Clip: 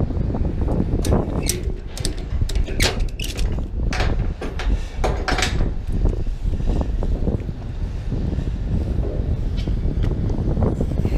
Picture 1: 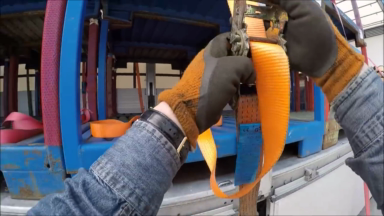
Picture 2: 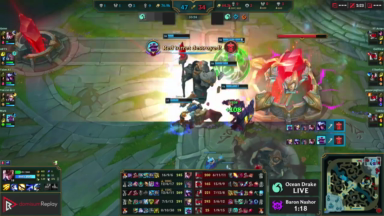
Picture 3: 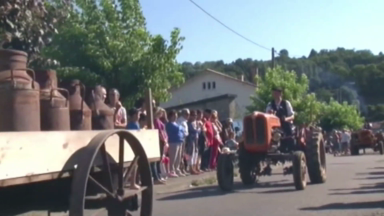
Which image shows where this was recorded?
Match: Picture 1